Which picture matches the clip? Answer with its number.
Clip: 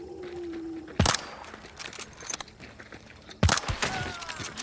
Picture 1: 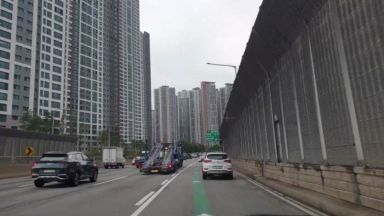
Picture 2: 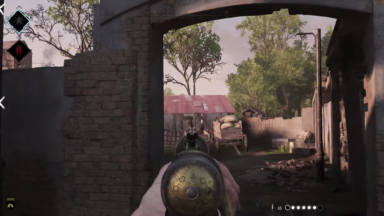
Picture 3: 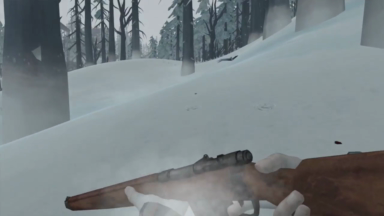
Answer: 2